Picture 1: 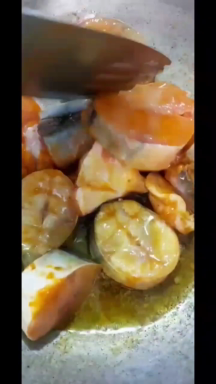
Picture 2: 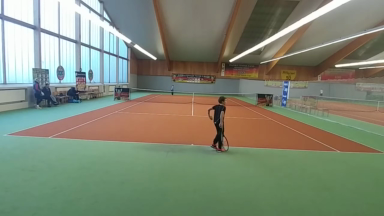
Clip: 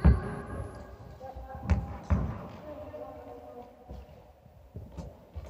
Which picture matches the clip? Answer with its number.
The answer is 2